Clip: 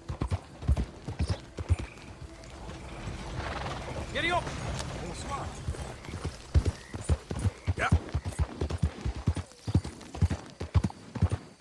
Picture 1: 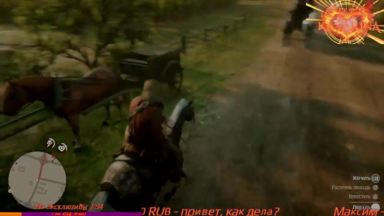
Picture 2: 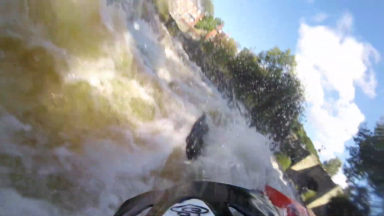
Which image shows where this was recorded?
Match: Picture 1